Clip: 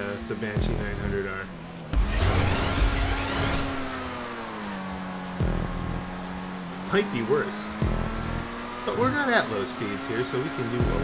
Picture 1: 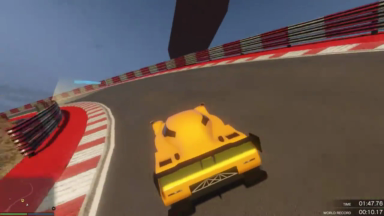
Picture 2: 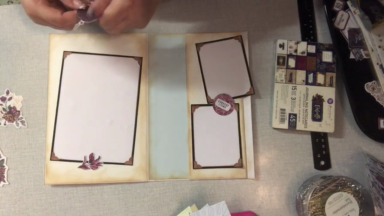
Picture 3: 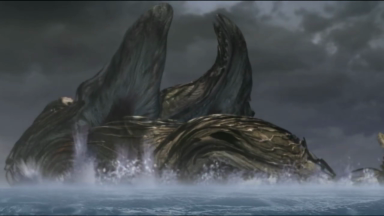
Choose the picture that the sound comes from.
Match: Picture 1